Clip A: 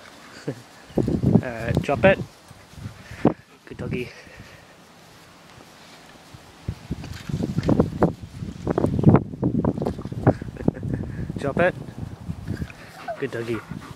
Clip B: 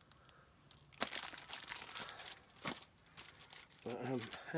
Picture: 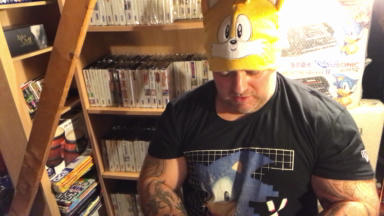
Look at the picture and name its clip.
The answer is B